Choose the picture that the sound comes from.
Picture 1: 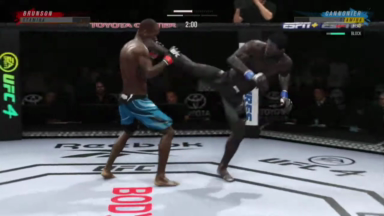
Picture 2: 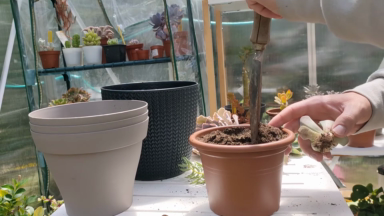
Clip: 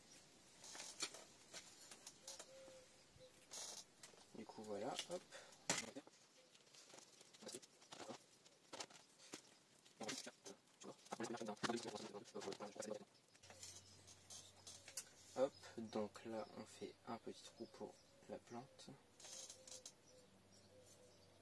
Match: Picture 2